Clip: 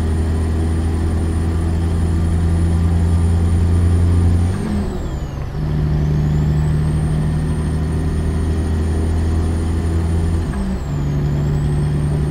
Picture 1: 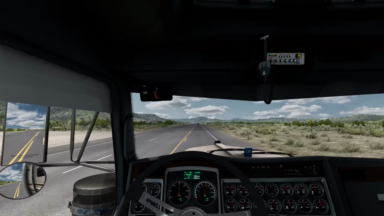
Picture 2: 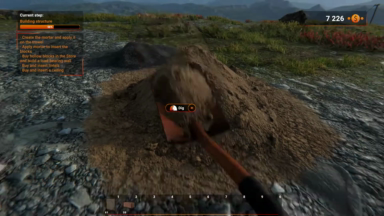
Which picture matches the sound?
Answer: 1